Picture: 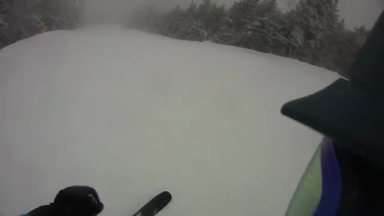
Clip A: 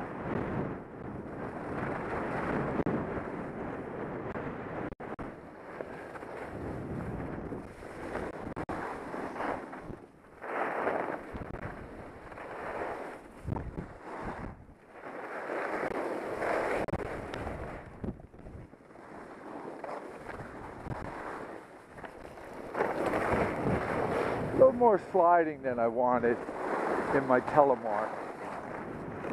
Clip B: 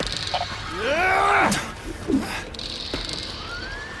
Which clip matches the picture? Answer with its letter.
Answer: A